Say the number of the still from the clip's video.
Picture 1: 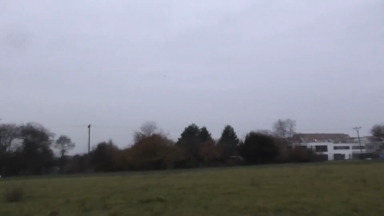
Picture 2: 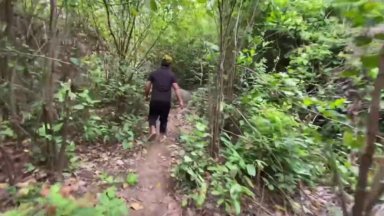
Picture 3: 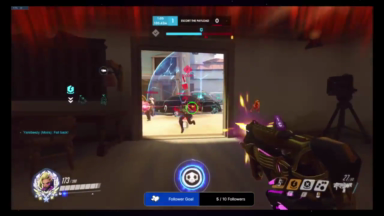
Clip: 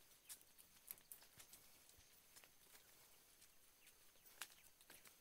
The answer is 2